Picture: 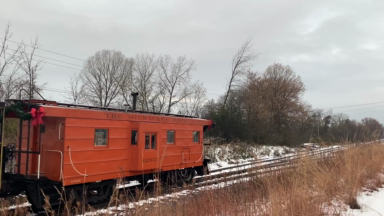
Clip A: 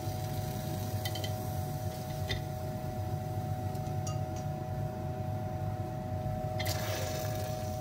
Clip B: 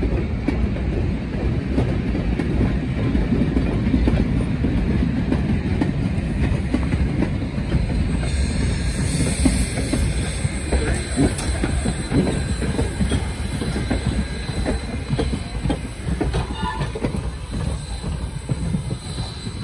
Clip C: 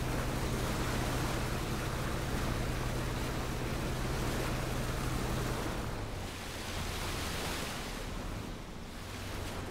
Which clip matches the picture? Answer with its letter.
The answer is B